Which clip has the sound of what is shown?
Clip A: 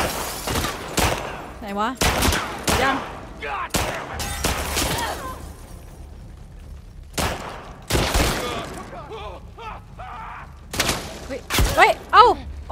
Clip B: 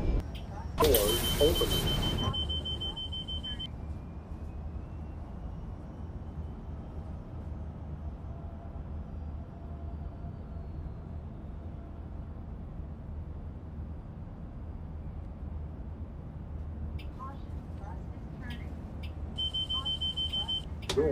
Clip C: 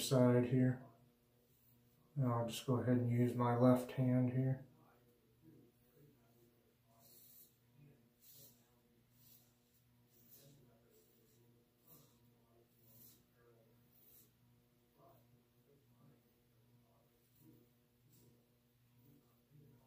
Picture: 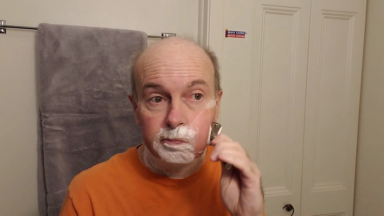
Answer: C